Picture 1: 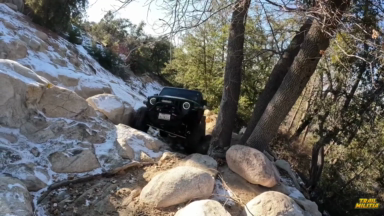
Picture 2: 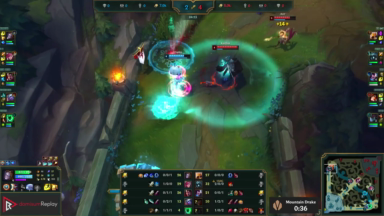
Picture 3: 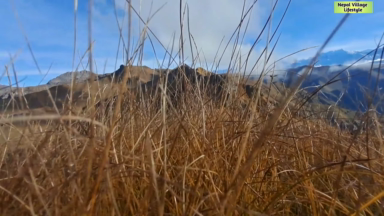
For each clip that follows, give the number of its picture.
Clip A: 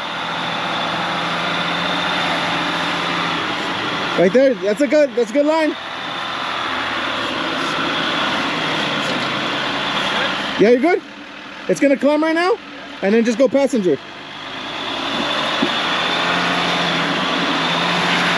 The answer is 1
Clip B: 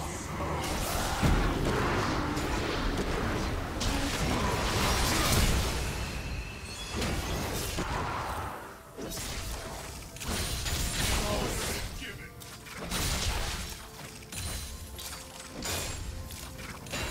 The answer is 2